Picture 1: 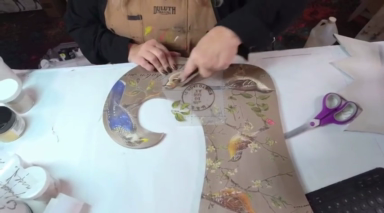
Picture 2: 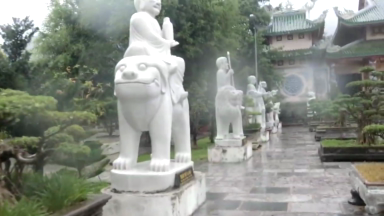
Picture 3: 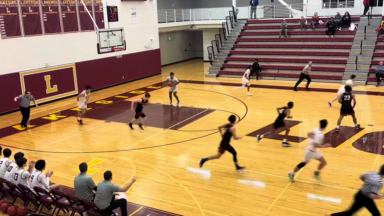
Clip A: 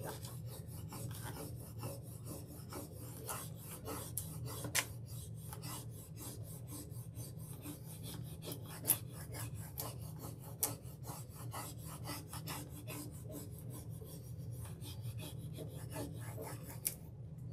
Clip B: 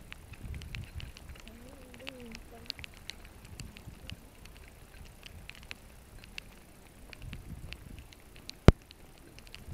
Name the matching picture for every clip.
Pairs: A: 1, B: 2